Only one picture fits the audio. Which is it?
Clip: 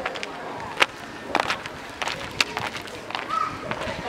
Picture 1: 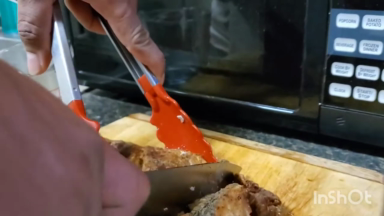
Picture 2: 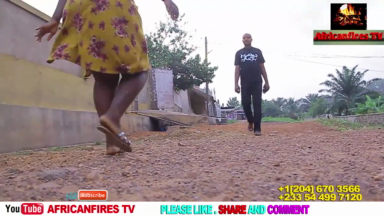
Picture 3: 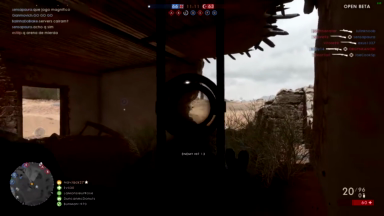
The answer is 2